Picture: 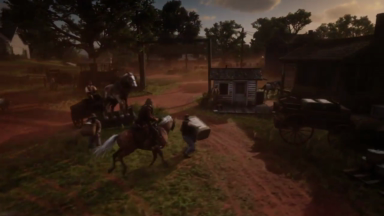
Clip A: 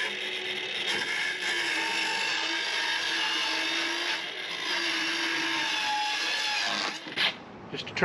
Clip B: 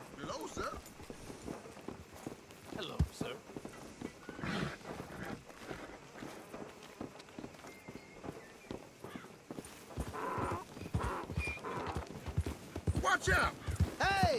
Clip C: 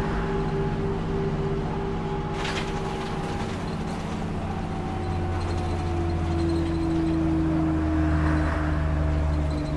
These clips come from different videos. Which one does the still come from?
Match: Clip B